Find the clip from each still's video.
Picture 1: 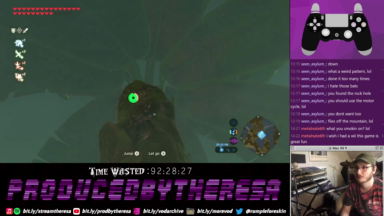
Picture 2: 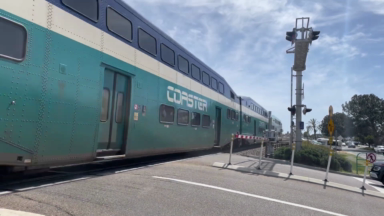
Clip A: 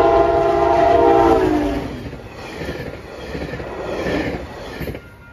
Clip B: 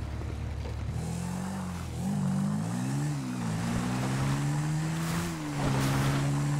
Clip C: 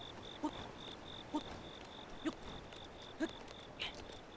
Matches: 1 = C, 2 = A